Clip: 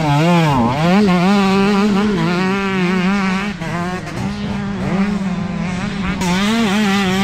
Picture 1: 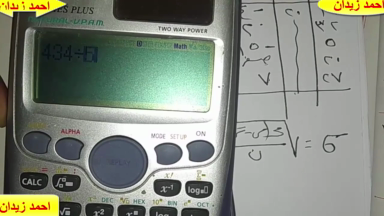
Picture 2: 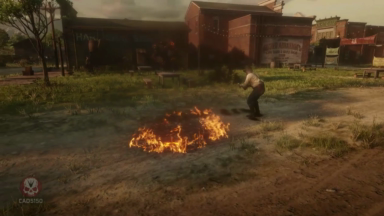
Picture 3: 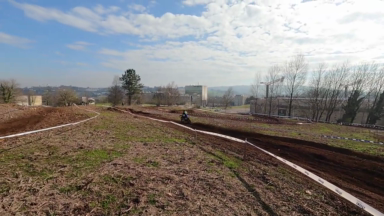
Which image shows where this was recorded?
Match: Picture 3